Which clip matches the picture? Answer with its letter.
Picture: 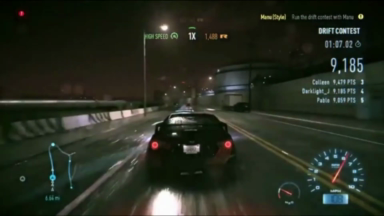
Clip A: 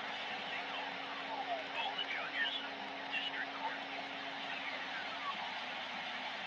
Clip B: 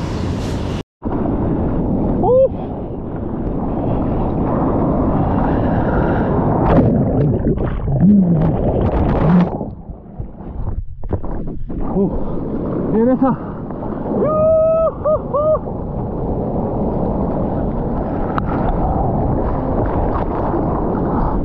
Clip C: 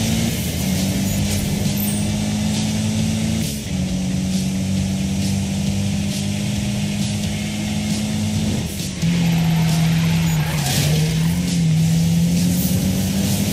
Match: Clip C